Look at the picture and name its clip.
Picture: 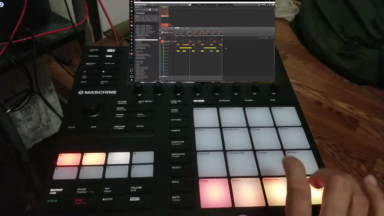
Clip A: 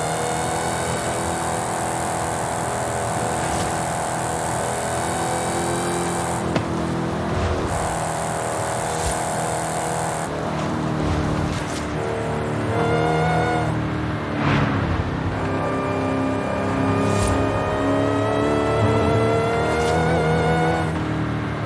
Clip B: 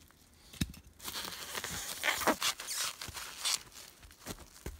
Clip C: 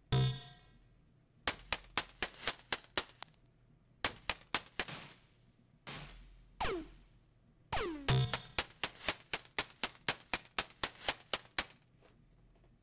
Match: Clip C